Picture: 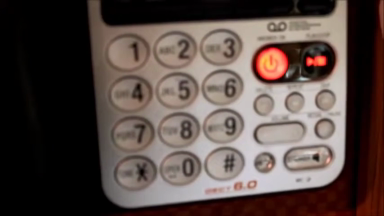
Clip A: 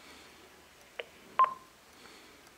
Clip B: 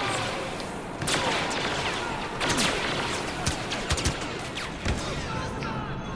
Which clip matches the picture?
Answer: A